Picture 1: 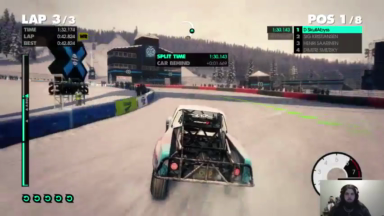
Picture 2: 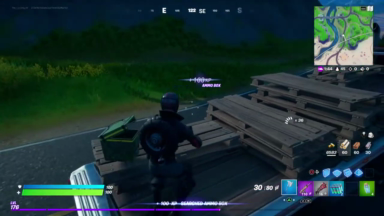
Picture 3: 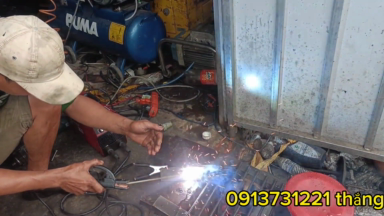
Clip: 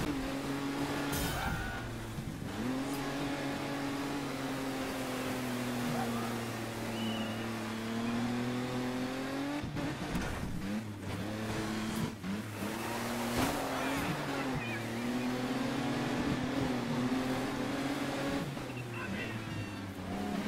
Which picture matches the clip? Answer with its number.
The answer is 1